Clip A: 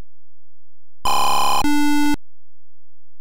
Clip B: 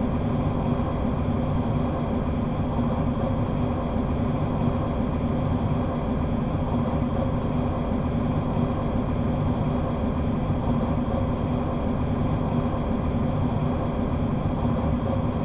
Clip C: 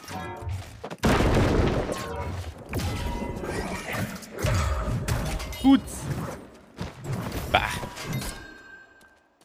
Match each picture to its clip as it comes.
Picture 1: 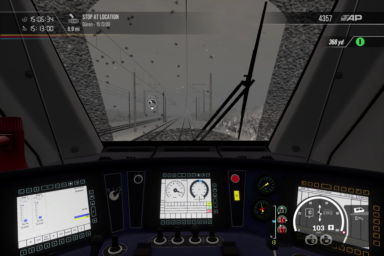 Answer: B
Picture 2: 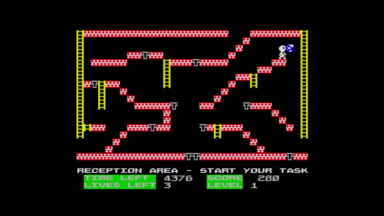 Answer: A